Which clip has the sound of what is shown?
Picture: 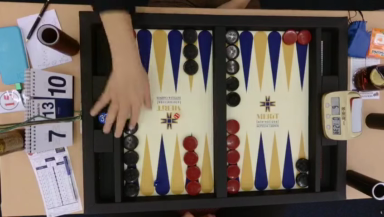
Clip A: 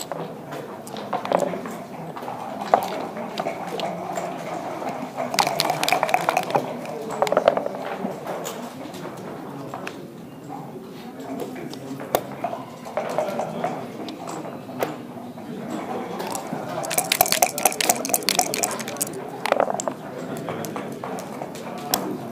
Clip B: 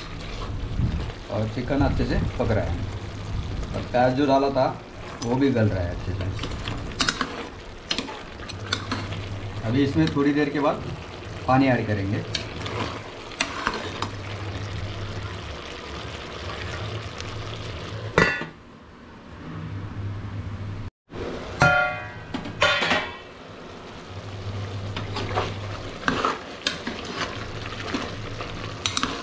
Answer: A